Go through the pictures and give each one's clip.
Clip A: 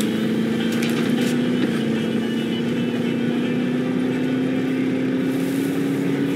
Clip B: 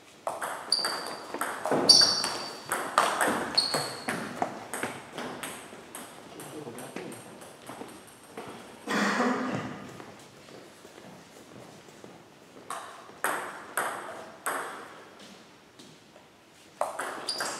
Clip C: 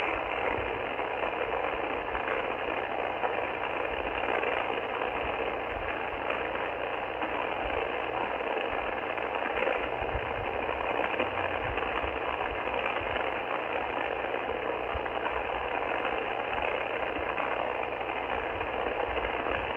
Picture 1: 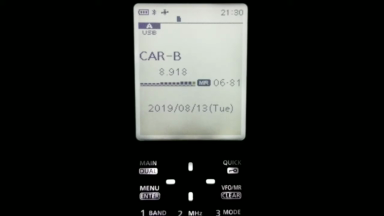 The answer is C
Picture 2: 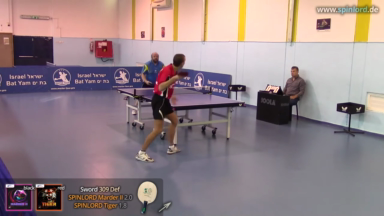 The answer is B